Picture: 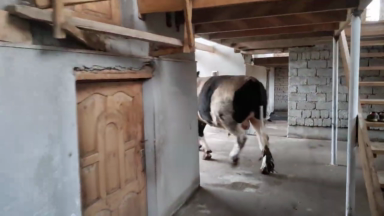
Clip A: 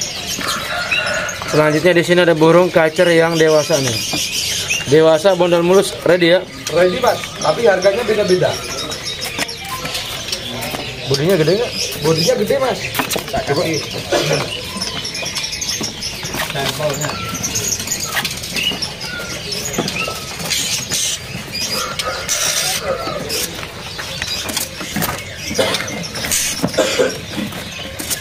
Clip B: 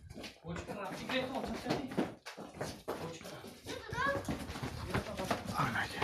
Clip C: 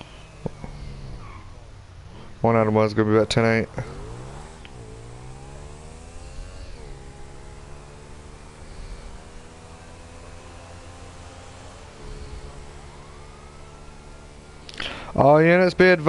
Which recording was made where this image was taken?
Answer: B